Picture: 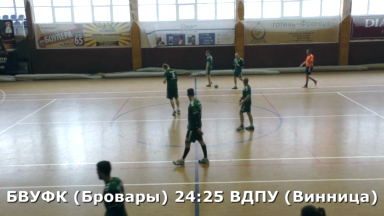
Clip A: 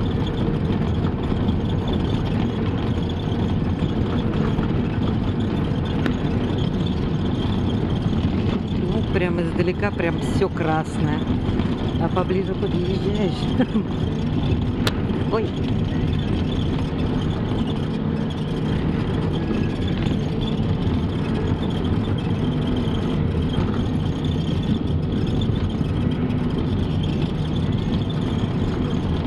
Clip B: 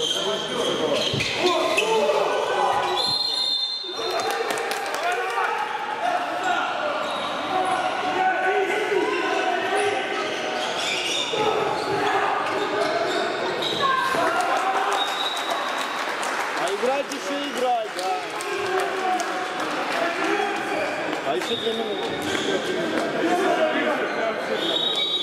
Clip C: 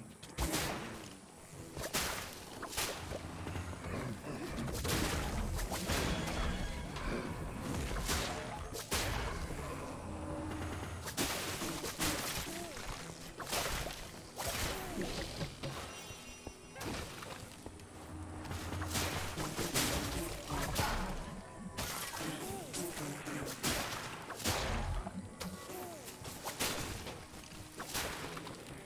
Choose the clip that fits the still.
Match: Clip B